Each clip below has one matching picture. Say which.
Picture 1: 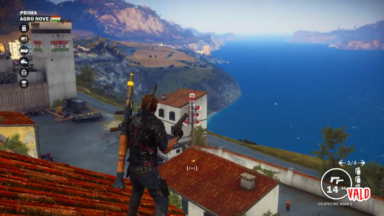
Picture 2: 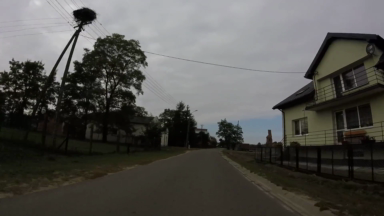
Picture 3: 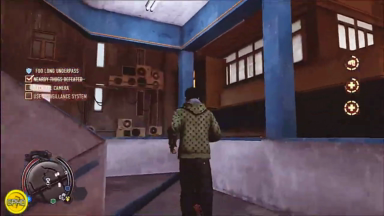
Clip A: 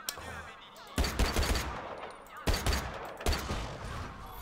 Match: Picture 1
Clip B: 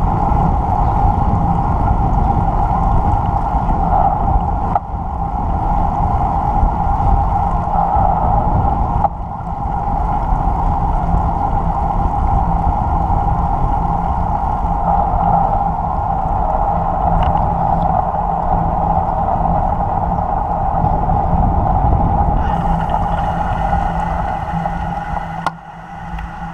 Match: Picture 2